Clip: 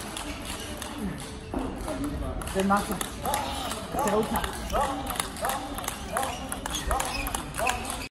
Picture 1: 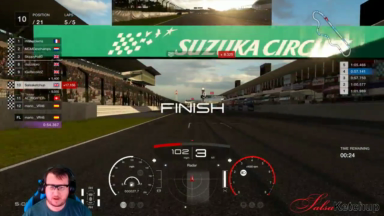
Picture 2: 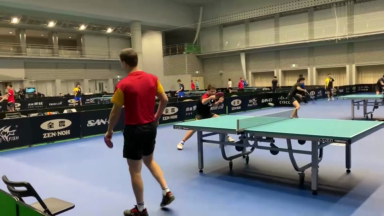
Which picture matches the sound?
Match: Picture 2